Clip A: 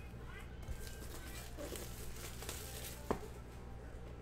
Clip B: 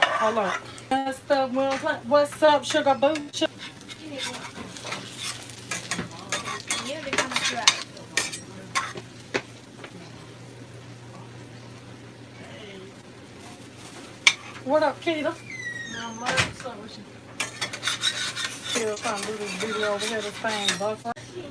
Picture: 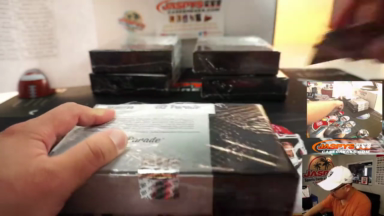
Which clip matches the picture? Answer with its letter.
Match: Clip A